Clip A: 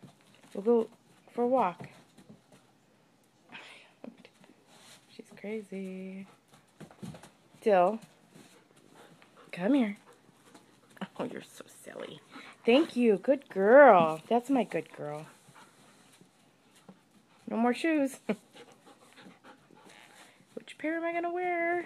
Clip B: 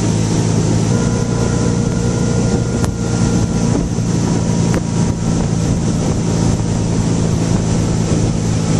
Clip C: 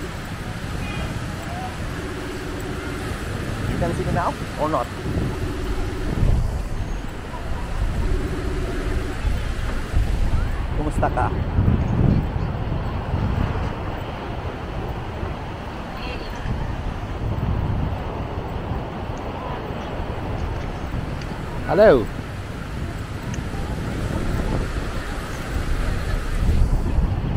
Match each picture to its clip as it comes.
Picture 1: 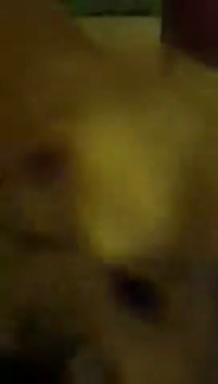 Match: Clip A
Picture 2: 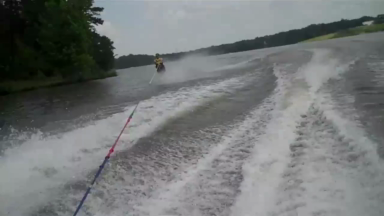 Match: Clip B